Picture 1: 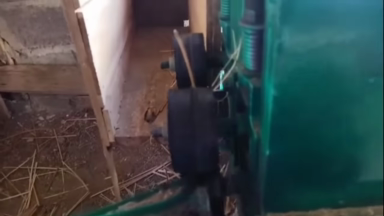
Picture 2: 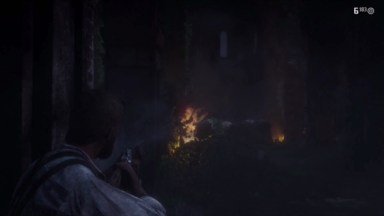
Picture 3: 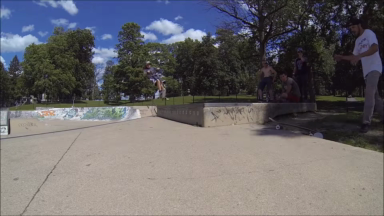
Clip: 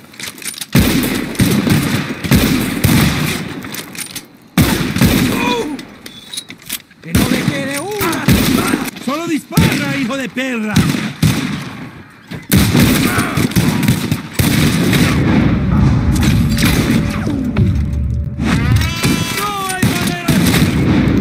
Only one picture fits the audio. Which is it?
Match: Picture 2